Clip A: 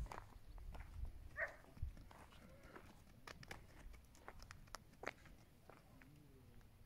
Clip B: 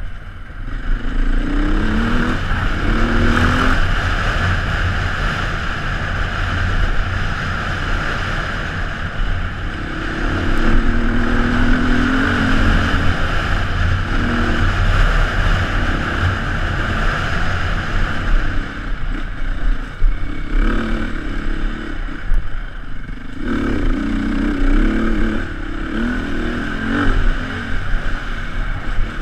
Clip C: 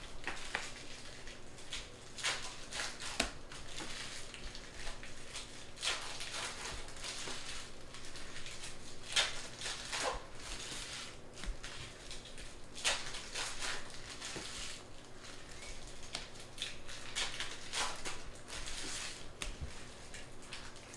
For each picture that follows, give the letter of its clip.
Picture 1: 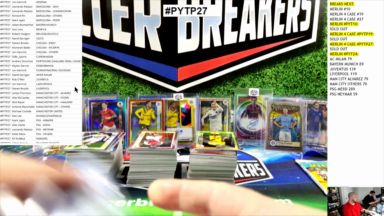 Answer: C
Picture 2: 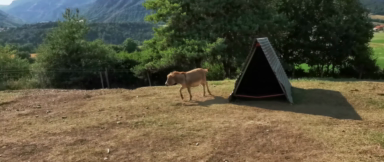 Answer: A